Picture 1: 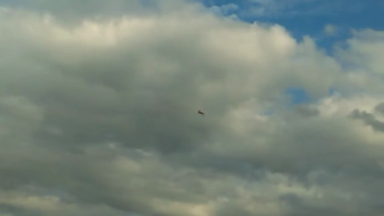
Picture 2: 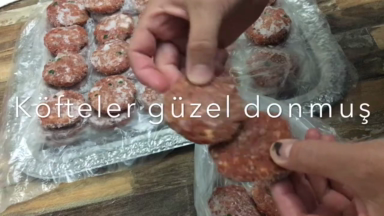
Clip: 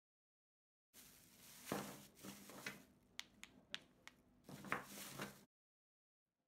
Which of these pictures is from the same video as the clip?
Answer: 2